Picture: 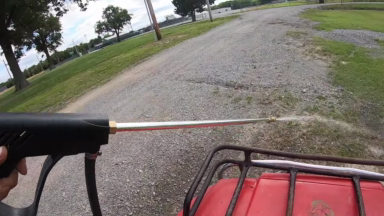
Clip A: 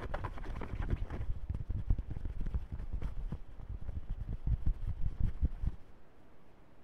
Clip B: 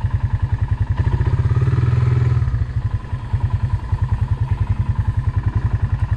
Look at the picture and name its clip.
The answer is B